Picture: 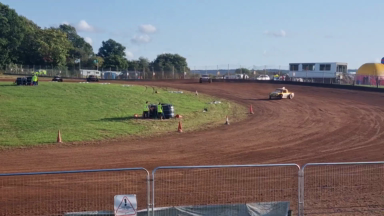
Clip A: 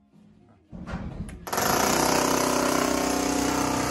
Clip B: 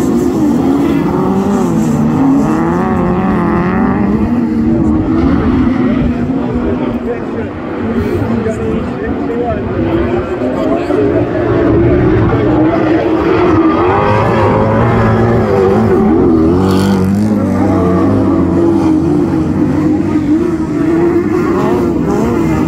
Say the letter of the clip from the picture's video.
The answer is B